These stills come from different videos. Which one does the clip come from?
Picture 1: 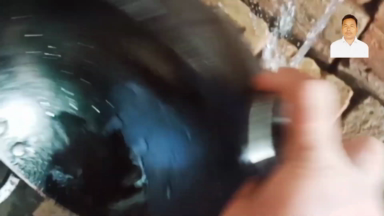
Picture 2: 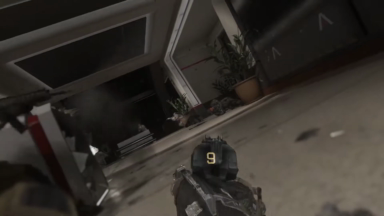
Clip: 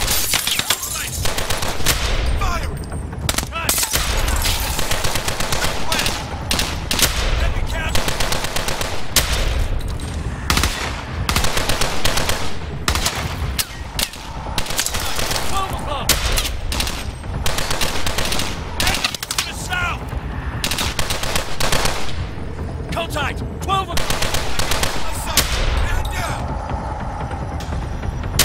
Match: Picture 2